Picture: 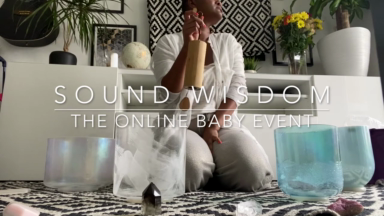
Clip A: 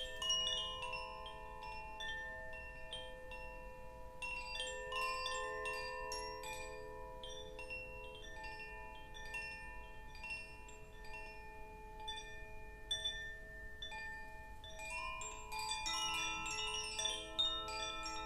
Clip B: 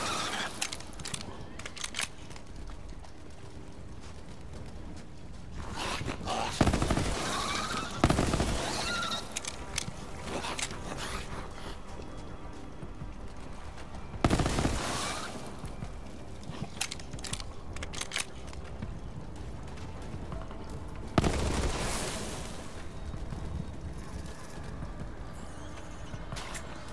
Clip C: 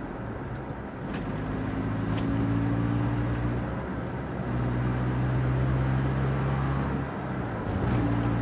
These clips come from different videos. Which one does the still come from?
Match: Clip A